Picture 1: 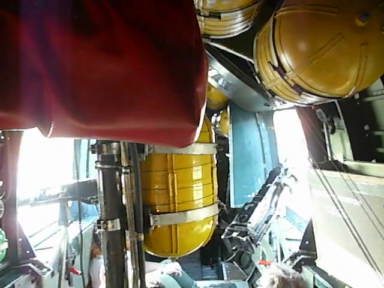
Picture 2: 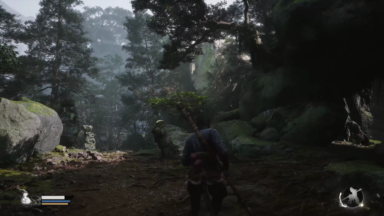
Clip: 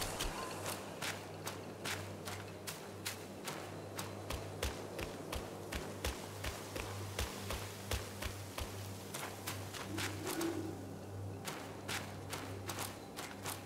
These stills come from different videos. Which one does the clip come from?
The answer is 2